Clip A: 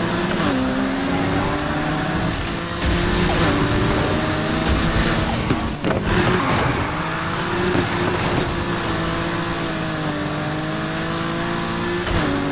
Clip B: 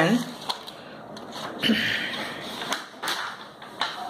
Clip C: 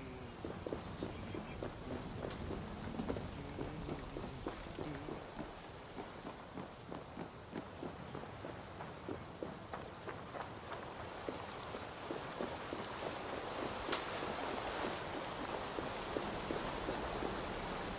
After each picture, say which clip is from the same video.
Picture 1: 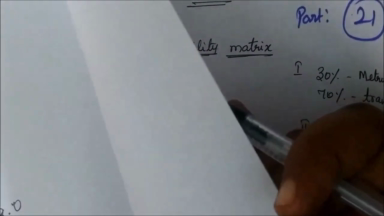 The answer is B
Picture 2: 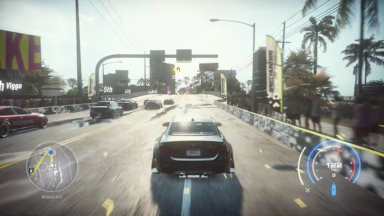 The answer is A